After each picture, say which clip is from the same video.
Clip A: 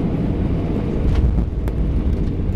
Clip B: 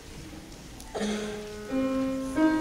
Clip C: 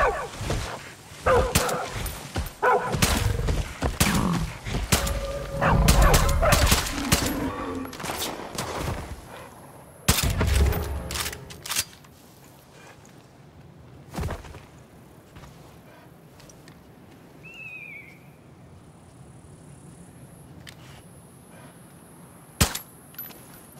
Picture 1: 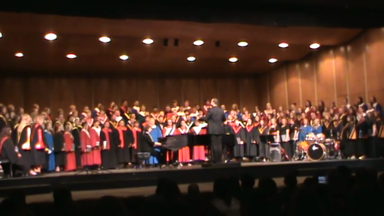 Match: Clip B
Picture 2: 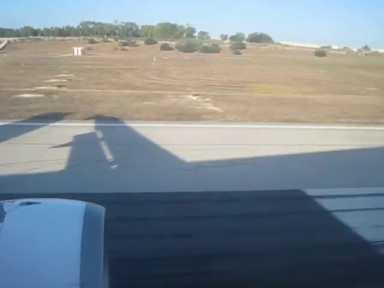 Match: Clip A